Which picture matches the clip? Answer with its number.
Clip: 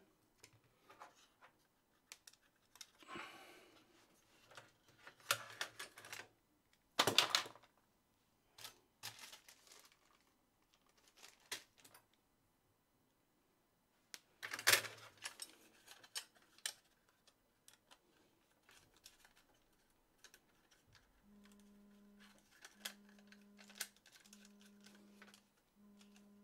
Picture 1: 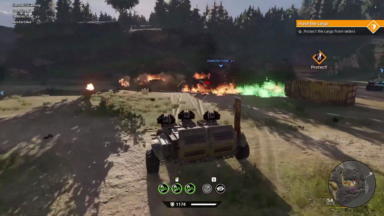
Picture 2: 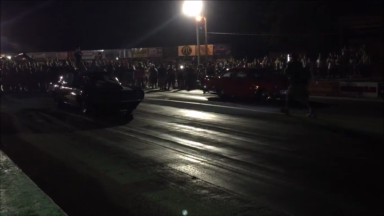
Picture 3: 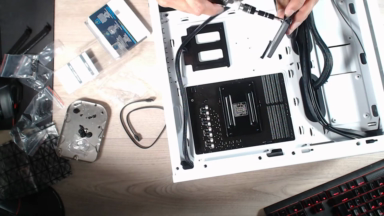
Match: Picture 3